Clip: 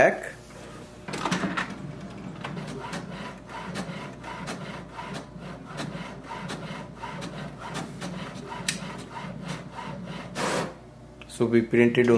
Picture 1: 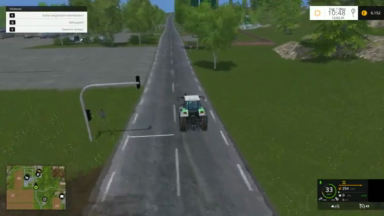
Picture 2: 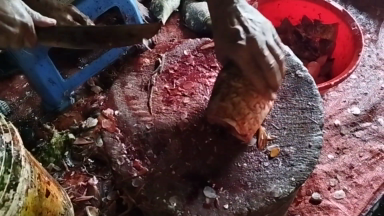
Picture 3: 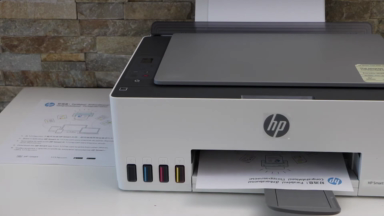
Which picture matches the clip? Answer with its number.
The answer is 3